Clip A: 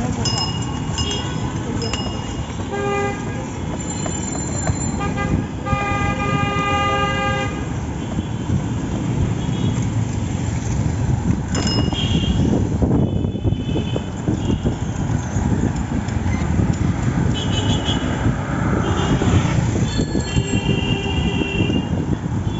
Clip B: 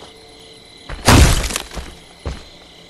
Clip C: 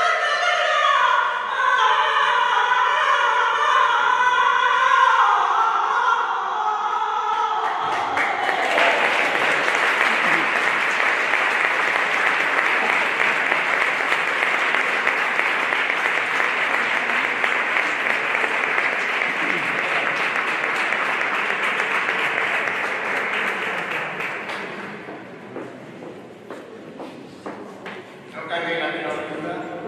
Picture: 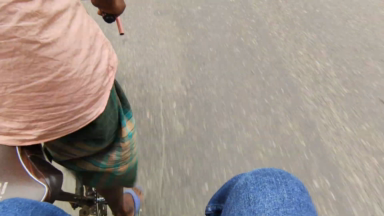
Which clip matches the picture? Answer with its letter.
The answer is A